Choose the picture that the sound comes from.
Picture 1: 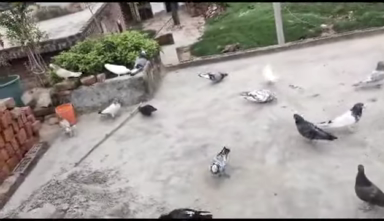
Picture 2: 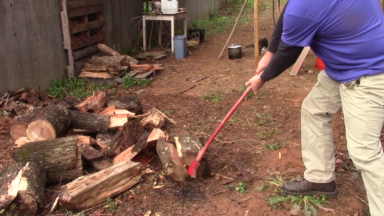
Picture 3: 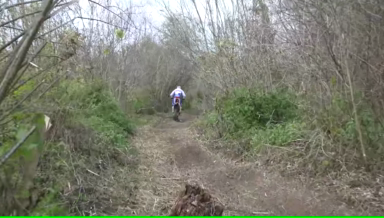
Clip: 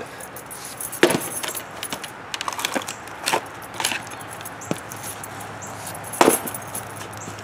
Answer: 2